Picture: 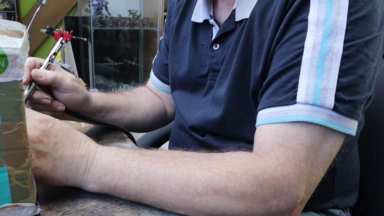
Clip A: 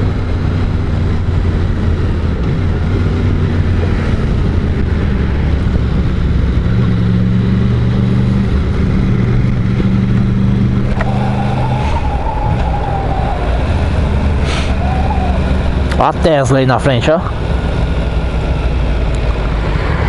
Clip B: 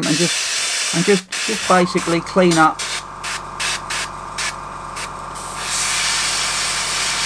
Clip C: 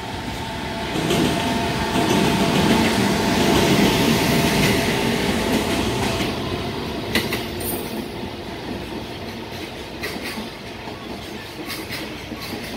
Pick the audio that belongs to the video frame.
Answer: B